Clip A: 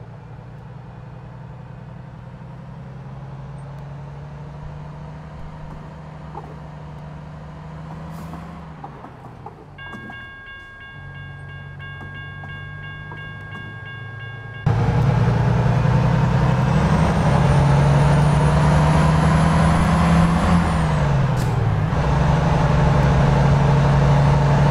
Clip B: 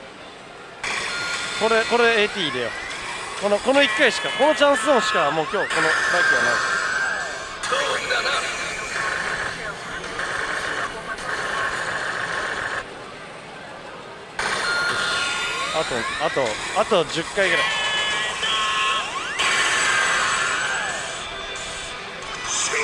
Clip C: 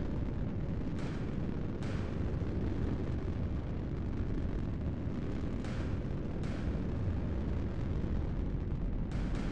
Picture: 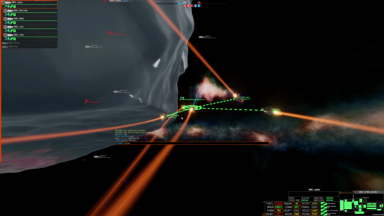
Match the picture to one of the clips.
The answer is C